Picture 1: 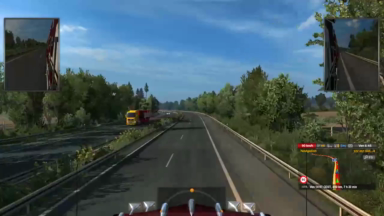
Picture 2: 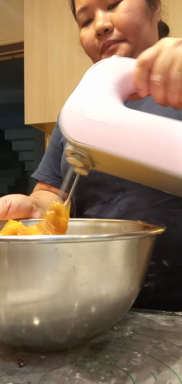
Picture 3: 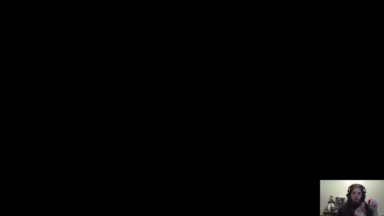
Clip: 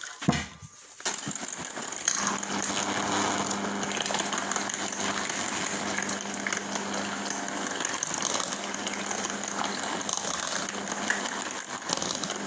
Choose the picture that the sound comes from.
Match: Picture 2